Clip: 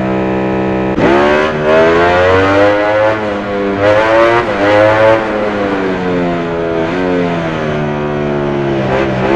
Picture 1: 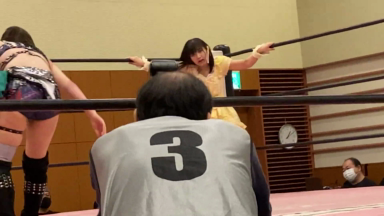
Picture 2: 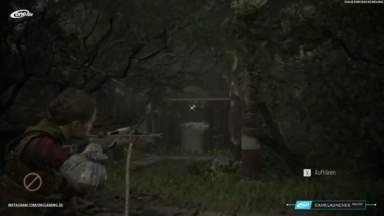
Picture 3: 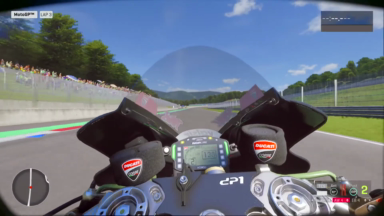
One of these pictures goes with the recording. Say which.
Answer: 3